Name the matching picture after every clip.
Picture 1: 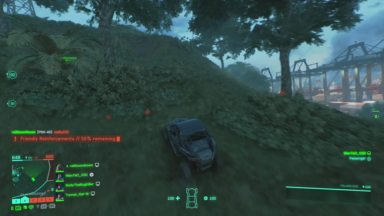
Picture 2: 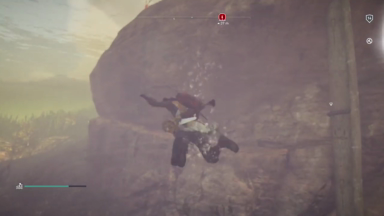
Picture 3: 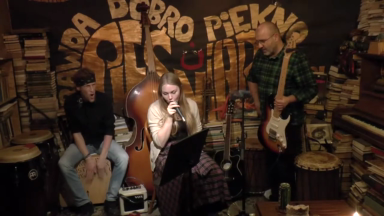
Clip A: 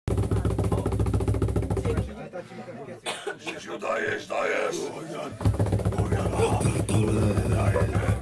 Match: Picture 3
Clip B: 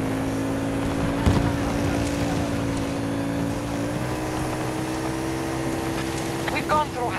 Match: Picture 1